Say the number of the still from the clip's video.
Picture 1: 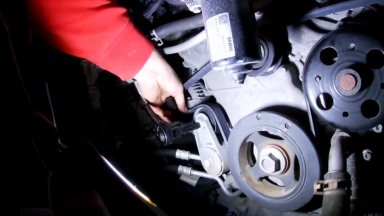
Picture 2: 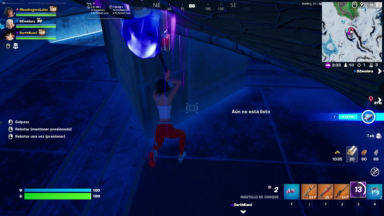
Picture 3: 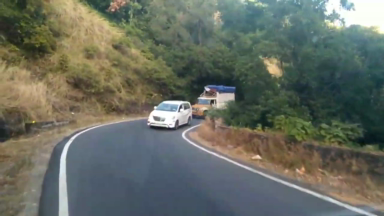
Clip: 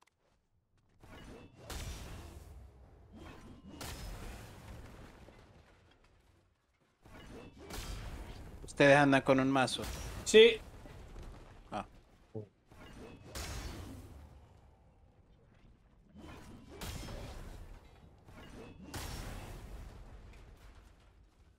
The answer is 2